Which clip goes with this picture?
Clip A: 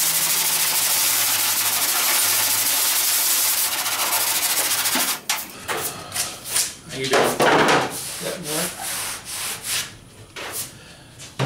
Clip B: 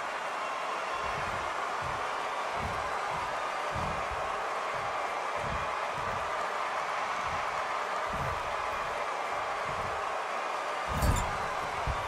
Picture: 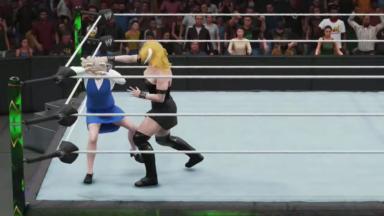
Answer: B